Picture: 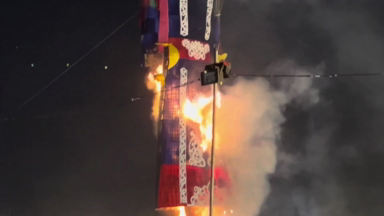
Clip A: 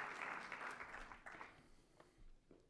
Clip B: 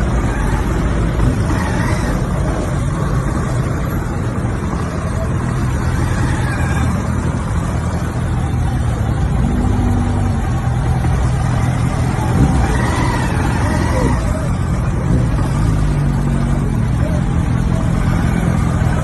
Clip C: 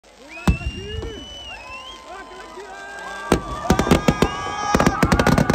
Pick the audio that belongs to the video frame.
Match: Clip C